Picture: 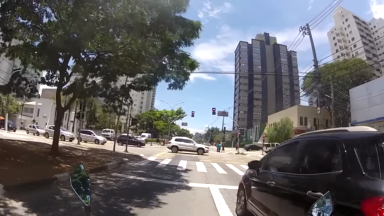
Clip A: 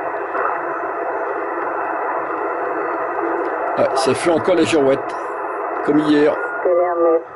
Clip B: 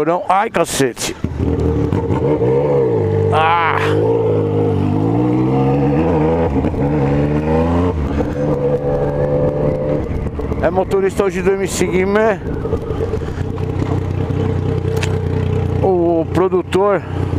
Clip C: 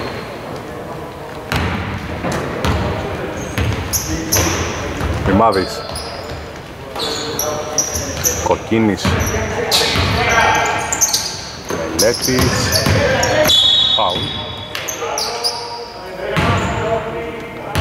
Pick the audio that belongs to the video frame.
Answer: B